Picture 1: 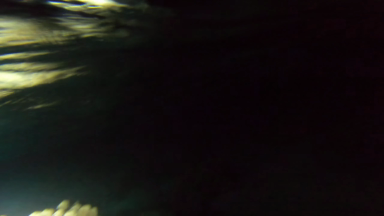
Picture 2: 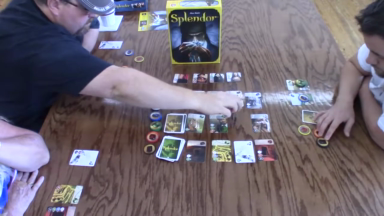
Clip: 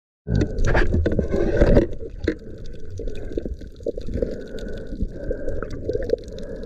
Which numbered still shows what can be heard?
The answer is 1